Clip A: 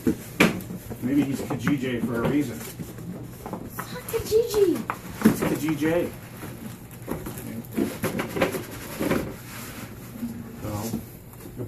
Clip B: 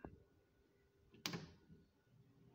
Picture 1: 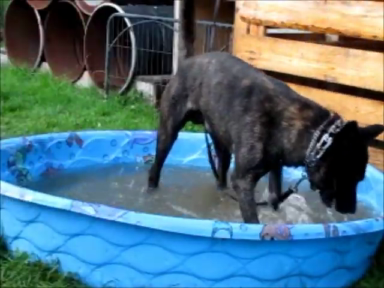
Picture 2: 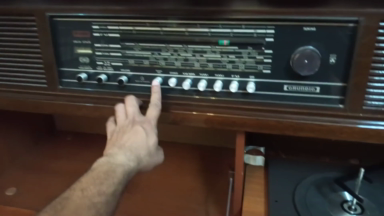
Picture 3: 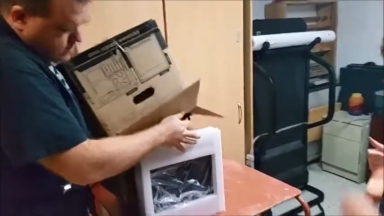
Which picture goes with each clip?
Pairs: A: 3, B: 2